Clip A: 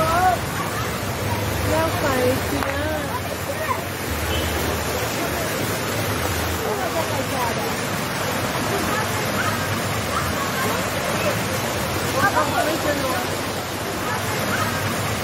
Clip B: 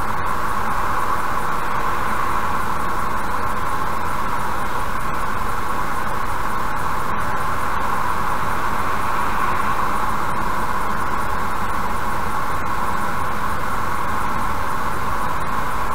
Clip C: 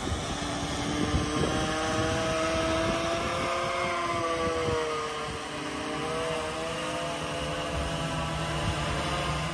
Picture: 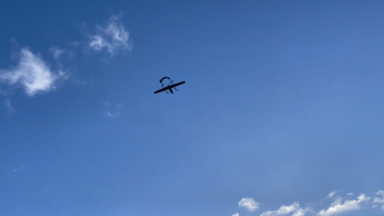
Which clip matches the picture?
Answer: C